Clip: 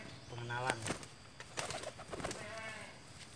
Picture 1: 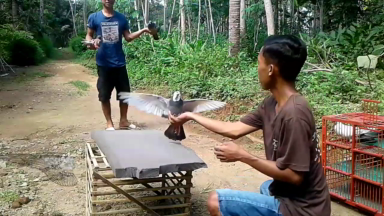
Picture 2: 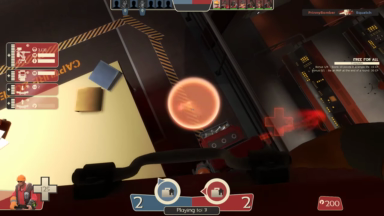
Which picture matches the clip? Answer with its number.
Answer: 1